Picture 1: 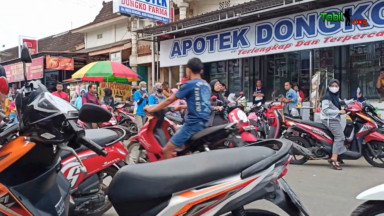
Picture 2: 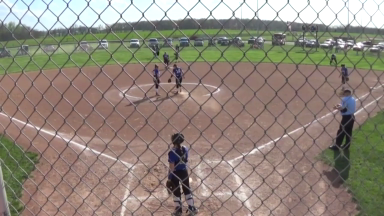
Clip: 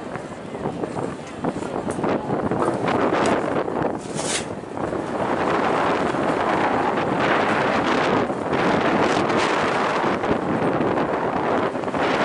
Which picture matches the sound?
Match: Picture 2